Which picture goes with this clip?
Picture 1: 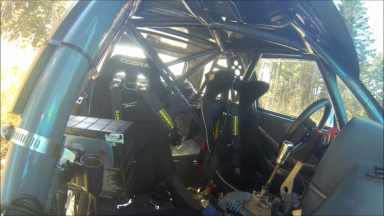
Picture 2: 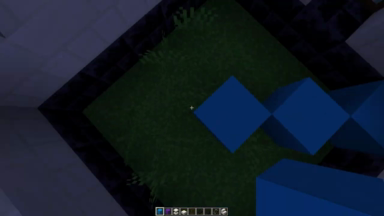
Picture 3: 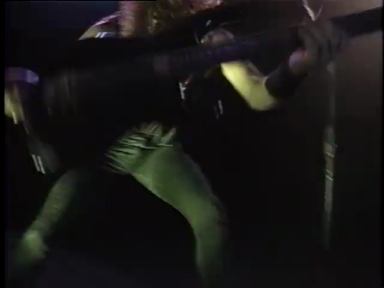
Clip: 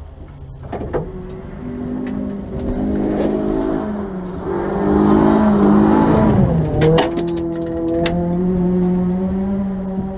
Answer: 1